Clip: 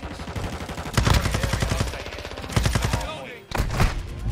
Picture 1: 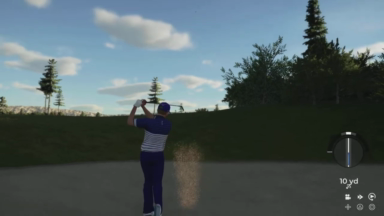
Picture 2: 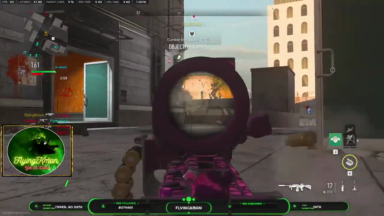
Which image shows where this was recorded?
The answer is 2